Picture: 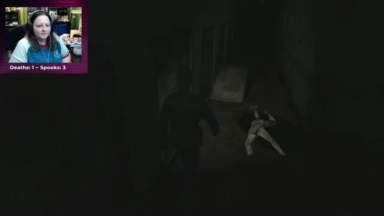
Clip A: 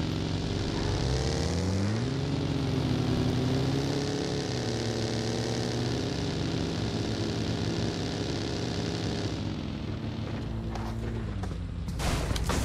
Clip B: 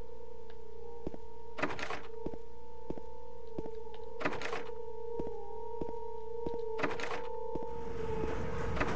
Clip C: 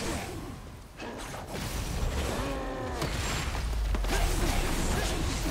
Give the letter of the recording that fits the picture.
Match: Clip B